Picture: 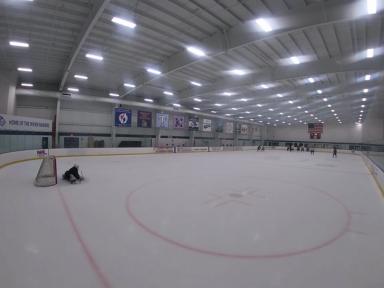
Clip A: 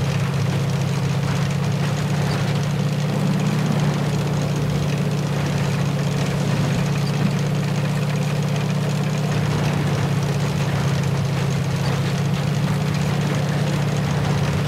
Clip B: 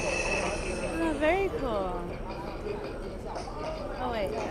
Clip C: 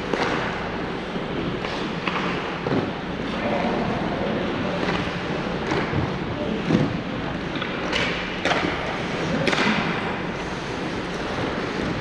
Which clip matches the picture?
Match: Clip C